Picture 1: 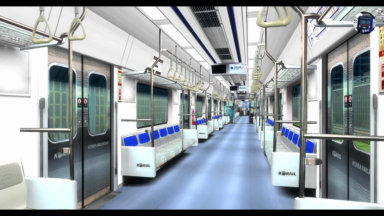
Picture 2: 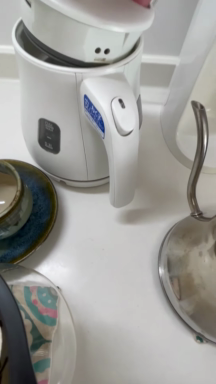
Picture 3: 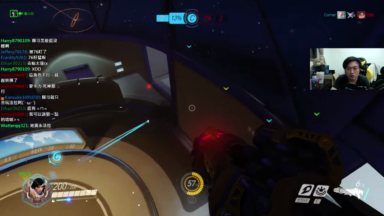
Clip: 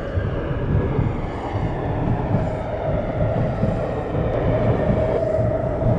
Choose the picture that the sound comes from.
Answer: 1